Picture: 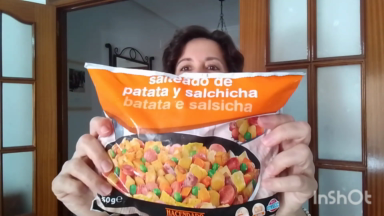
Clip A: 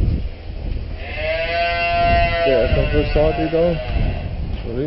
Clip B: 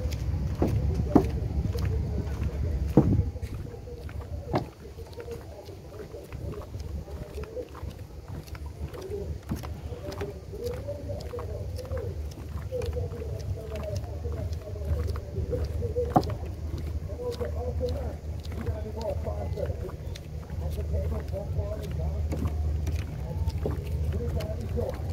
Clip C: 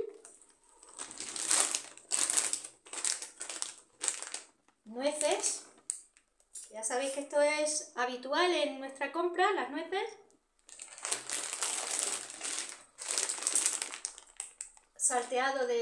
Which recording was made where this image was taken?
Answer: C